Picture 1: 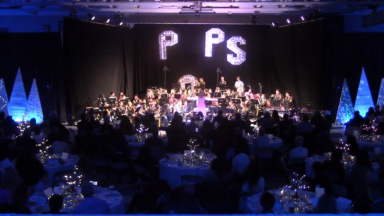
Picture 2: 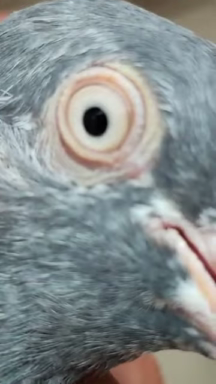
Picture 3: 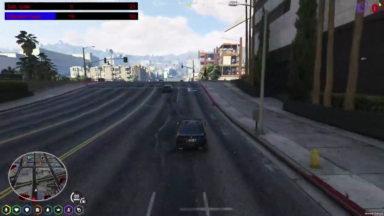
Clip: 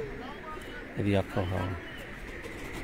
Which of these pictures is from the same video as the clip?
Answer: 2